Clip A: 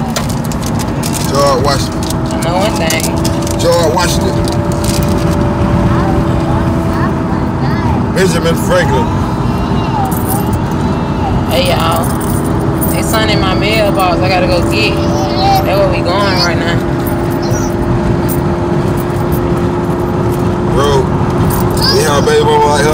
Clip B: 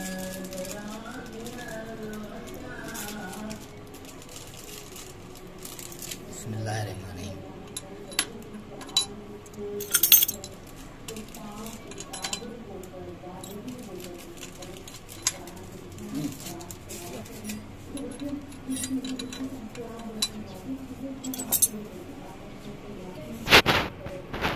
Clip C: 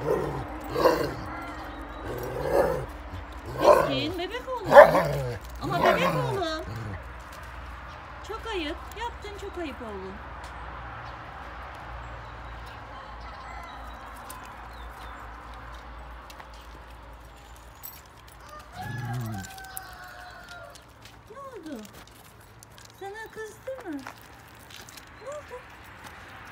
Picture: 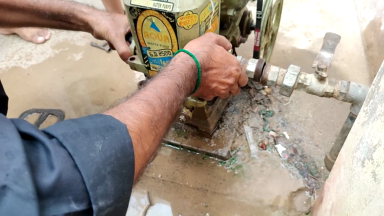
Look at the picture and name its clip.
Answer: B